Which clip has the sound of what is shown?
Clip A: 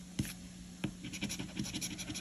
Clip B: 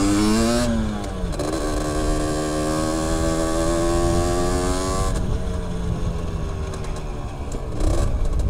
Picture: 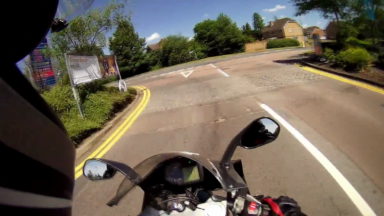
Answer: B